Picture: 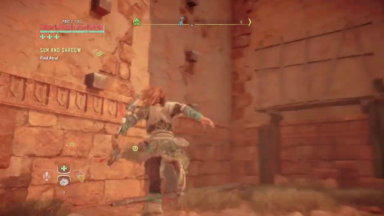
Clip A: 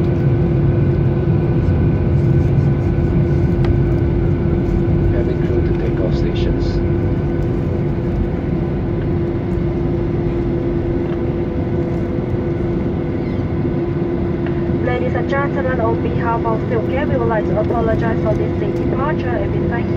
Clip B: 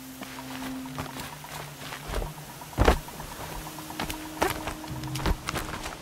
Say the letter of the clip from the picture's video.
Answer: B